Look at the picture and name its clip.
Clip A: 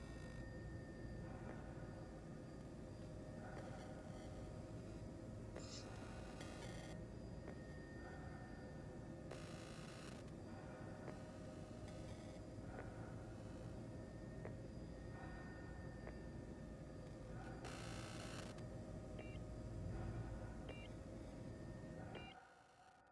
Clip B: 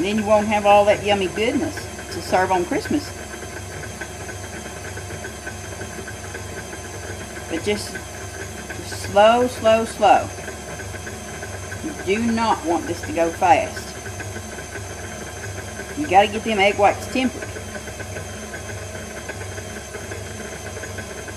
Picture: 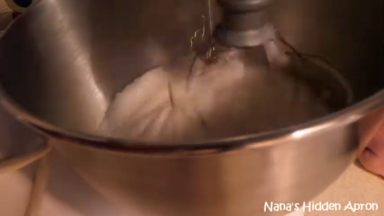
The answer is B